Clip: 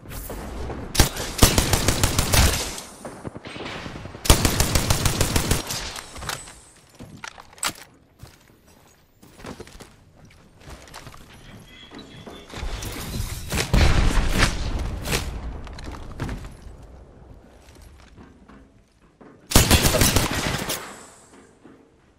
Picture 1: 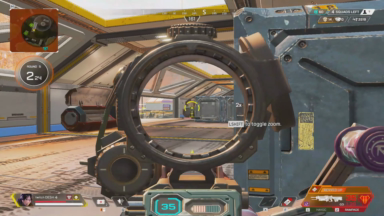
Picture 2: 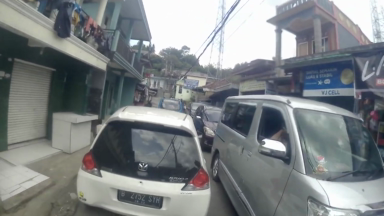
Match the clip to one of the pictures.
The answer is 1